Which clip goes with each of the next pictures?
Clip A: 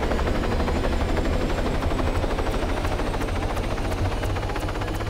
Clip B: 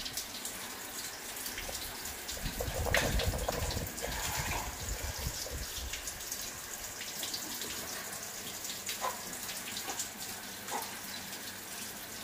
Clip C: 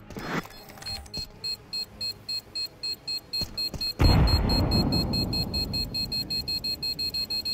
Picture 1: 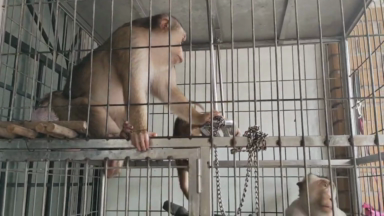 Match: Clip B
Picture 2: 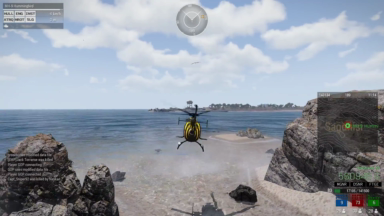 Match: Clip A